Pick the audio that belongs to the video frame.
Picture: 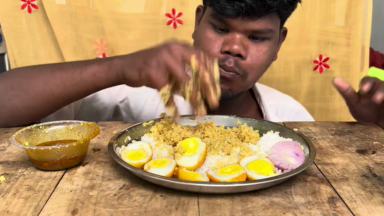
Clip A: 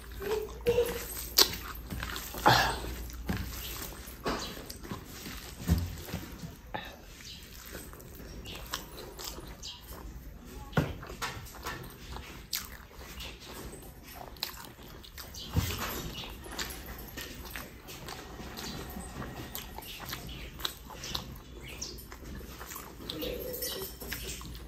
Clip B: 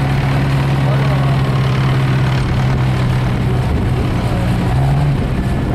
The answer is A